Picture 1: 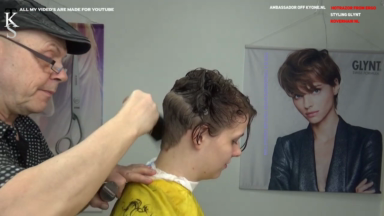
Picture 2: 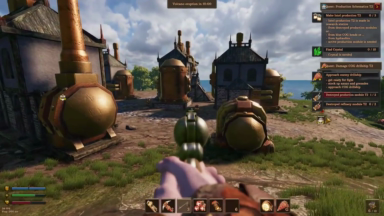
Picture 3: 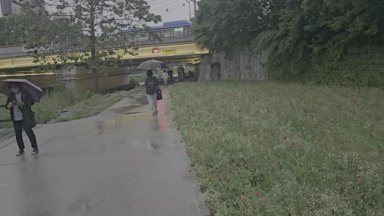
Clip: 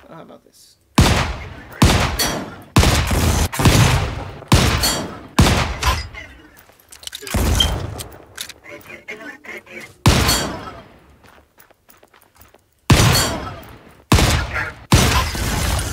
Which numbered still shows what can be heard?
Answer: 2